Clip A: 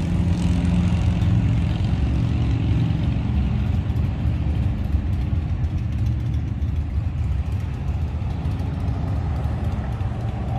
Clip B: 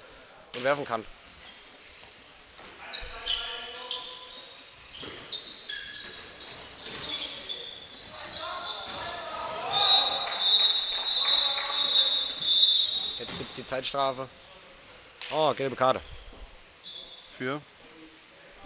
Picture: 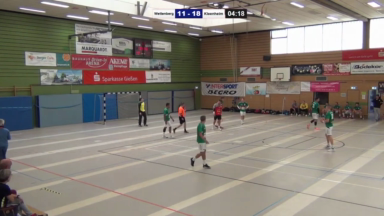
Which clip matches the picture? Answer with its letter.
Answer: B